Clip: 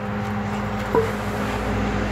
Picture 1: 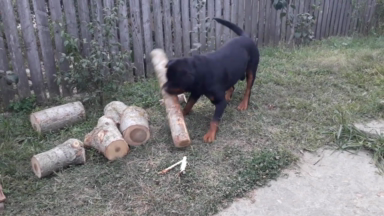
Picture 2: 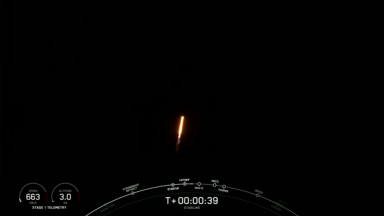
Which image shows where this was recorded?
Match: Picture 1